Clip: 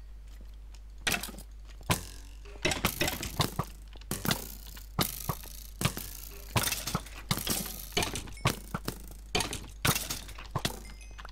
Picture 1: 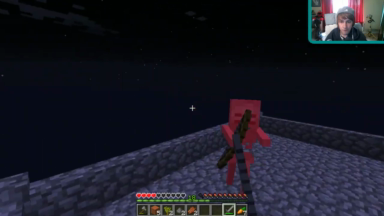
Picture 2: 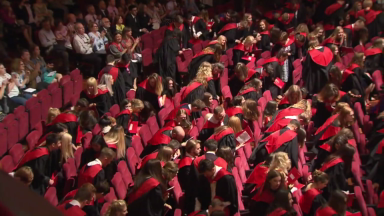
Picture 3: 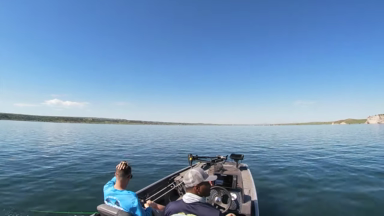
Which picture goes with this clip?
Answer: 1